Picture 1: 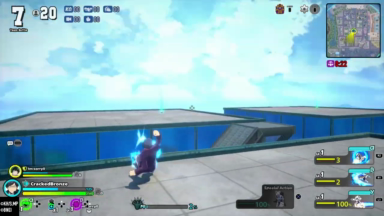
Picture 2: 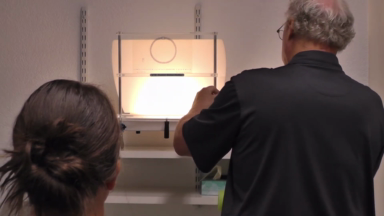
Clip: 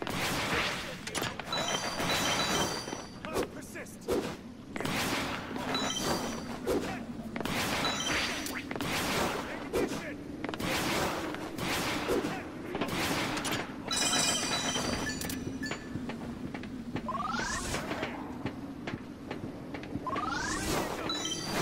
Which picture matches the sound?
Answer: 1